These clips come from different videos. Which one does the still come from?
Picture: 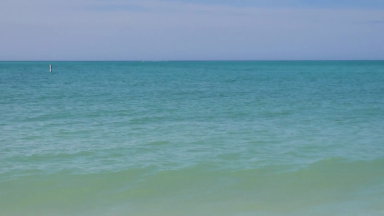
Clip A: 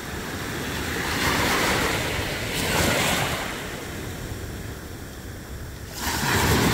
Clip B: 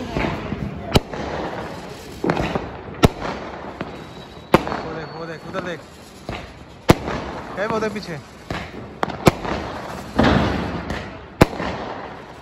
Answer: A